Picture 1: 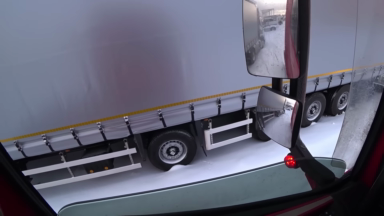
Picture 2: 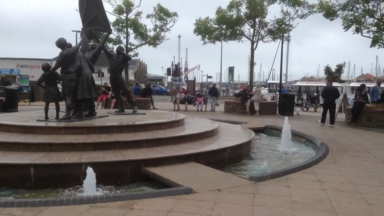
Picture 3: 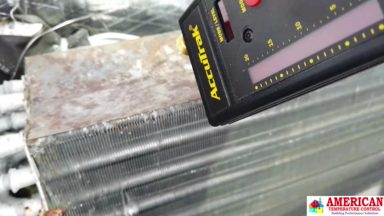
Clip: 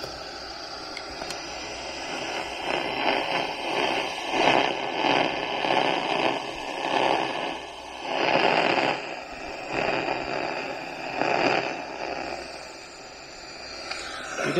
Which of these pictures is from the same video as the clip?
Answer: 3